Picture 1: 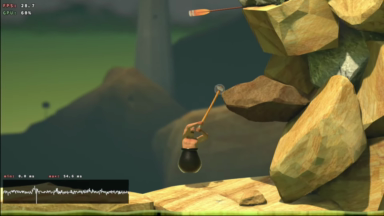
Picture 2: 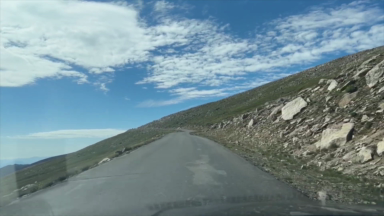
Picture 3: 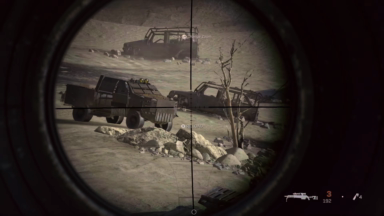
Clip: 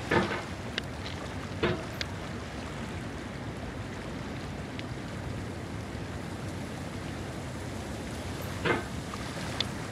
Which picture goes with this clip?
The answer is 1